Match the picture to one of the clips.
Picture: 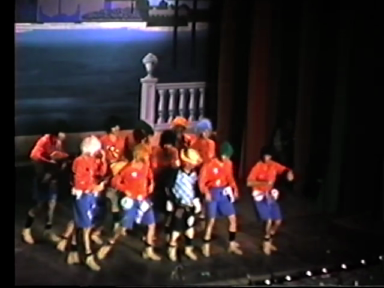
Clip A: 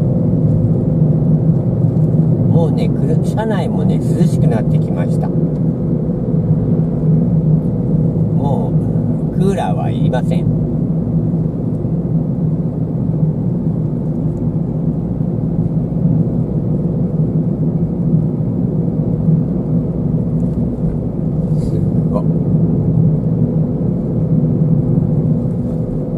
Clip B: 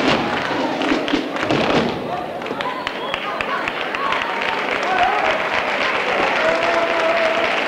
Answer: B